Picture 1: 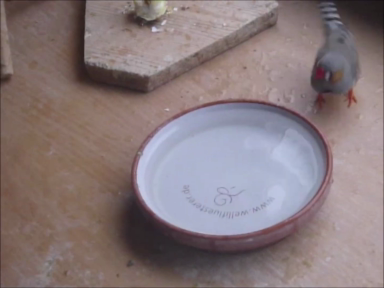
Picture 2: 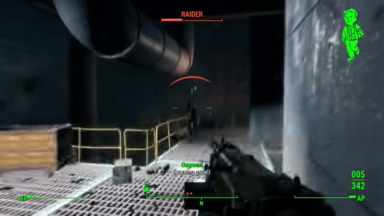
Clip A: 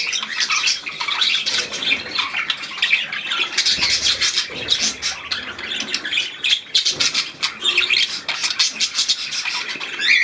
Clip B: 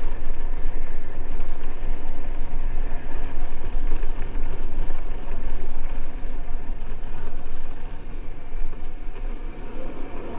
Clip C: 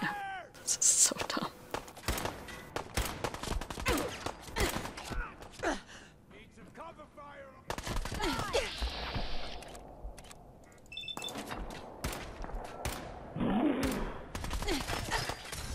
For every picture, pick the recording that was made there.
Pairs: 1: A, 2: C